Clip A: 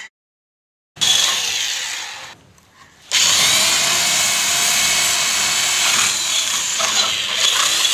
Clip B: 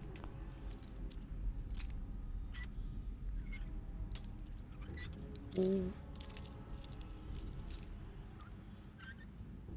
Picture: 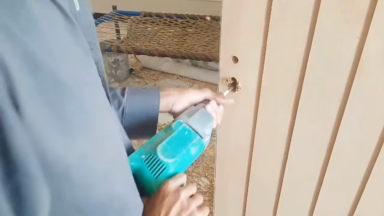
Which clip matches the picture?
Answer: A